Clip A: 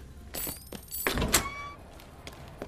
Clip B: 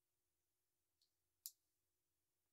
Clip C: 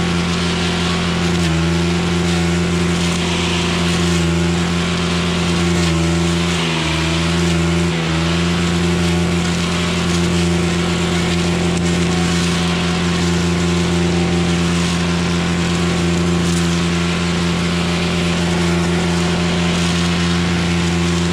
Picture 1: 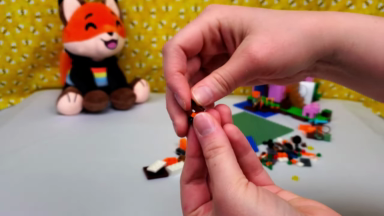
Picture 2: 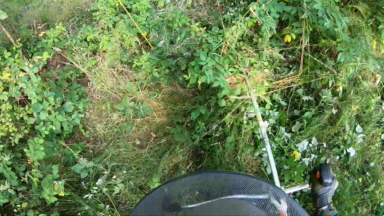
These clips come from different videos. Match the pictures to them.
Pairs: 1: B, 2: C